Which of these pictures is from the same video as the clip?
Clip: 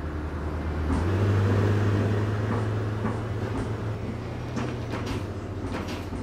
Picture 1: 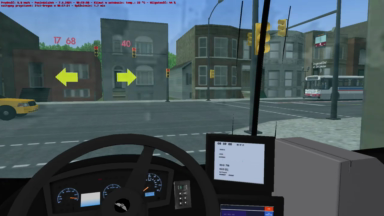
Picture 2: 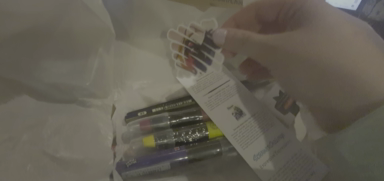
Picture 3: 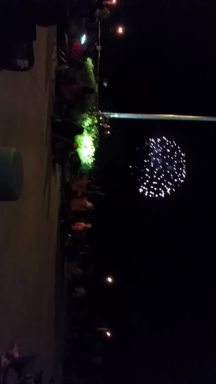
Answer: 1